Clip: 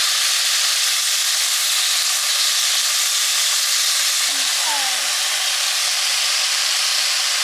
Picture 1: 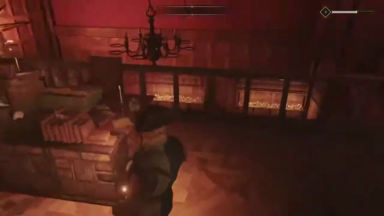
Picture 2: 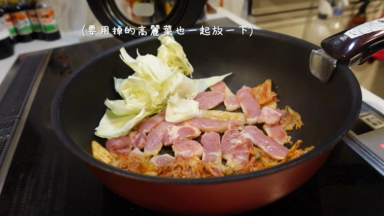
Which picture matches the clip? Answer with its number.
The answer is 2